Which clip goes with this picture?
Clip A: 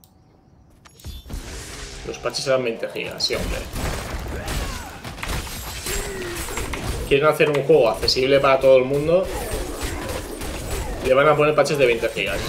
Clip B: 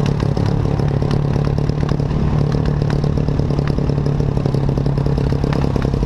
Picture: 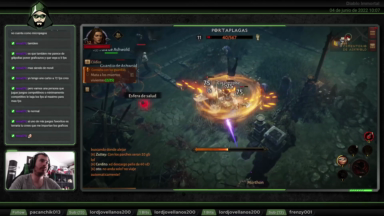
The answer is A